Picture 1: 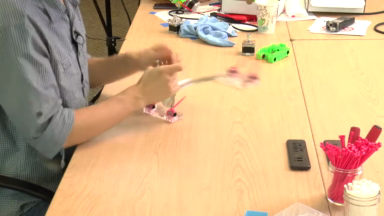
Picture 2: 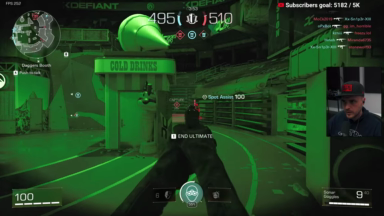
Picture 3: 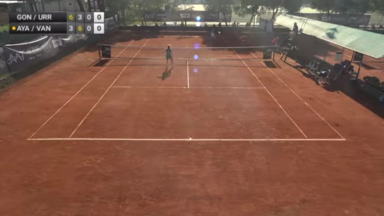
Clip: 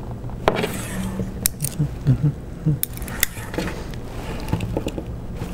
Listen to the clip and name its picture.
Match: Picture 1